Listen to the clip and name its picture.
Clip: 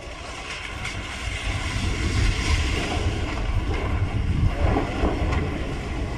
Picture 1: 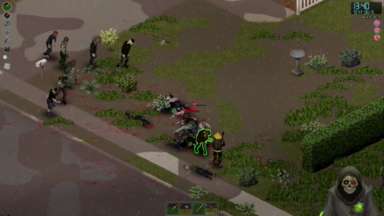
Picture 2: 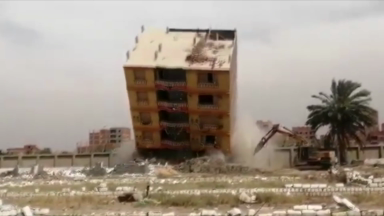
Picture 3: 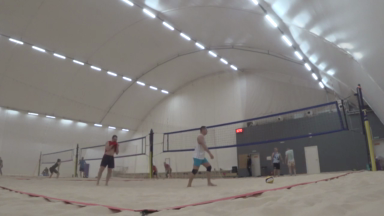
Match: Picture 2